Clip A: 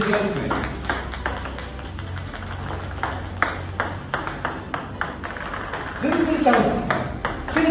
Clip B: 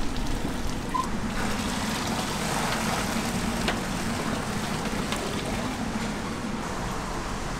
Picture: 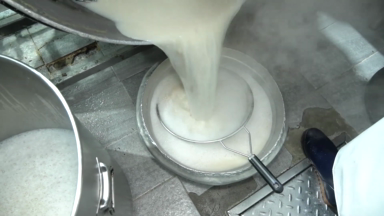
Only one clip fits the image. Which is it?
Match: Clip B